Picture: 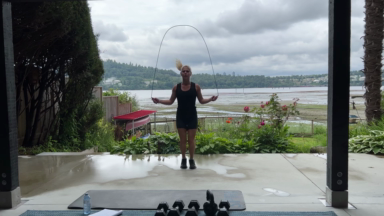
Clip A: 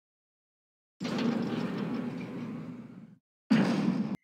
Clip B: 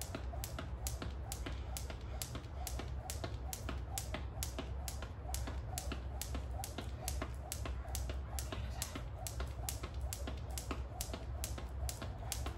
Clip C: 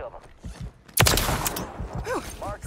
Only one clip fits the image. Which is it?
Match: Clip B